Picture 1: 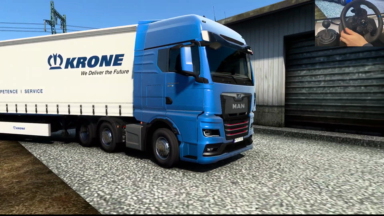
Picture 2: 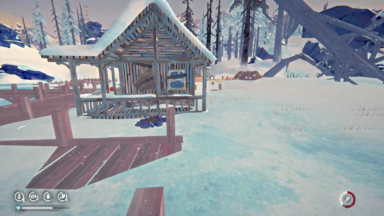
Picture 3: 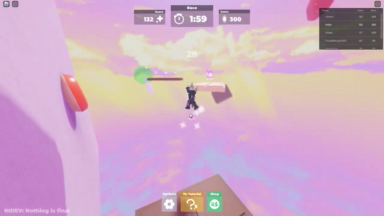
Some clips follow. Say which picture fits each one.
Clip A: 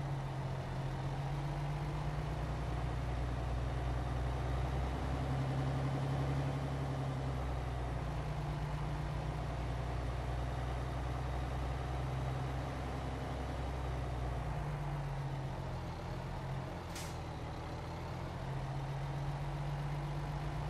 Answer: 1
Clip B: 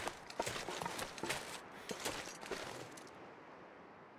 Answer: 2